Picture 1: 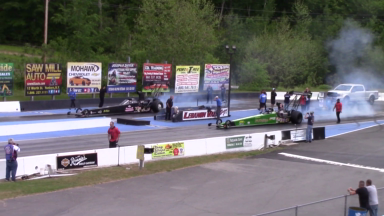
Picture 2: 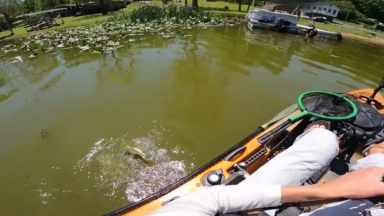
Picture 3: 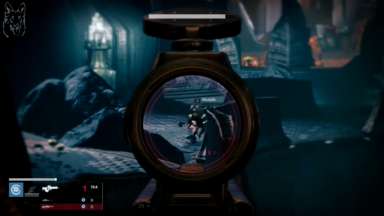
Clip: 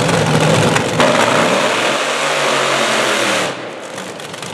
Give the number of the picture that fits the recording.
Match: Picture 1